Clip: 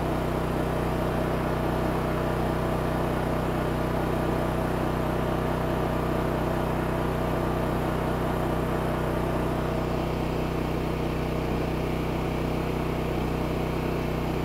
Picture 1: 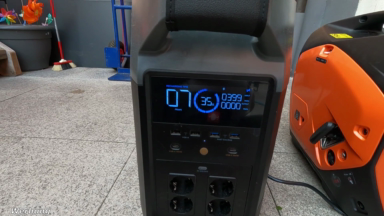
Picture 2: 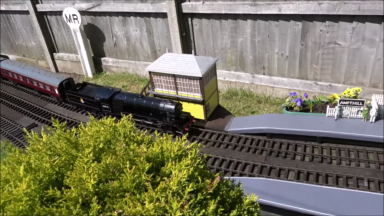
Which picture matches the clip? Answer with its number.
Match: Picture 1